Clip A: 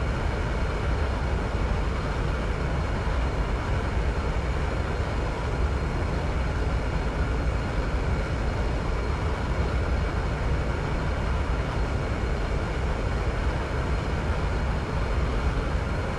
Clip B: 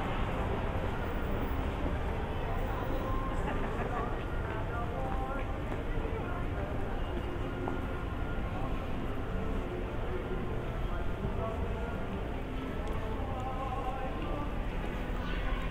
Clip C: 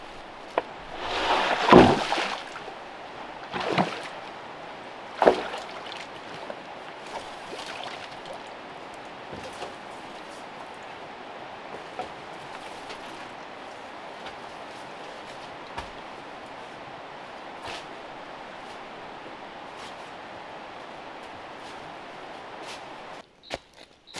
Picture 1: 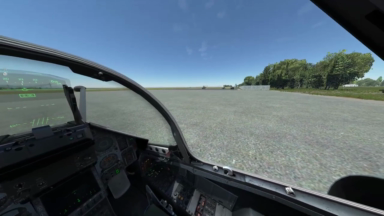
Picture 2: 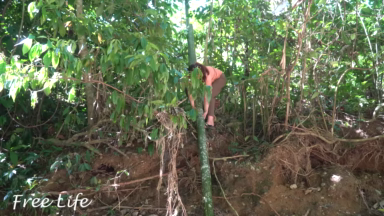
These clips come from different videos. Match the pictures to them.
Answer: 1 A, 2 C